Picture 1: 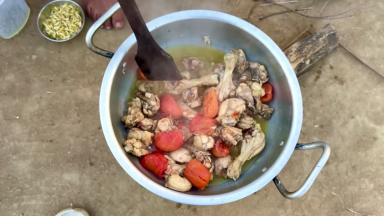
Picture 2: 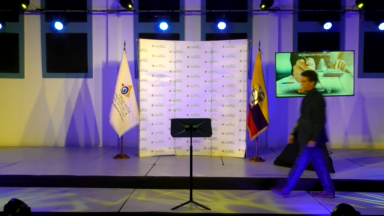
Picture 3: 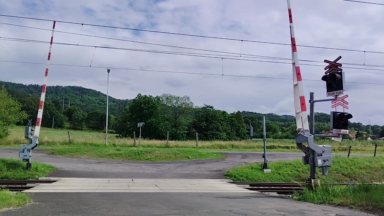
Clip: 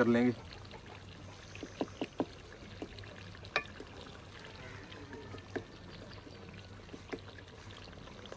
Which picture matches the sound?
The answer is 1